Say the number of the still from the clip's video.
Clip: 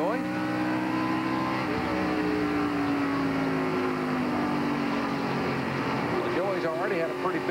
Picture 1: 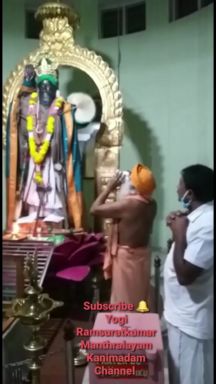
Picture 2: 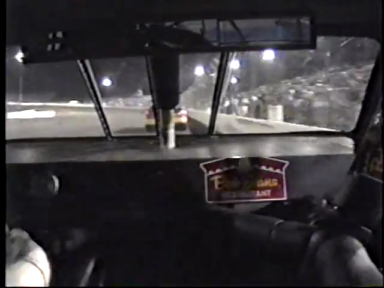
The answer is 2